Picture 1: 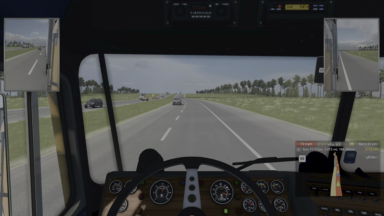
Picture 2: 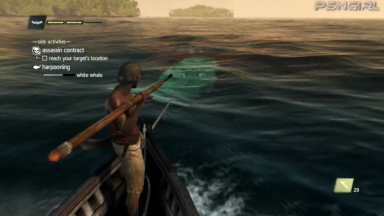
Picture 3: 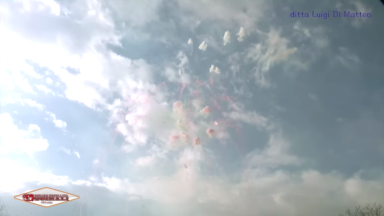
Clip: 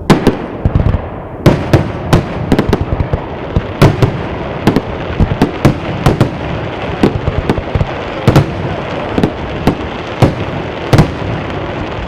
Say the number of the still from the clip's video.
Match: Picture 3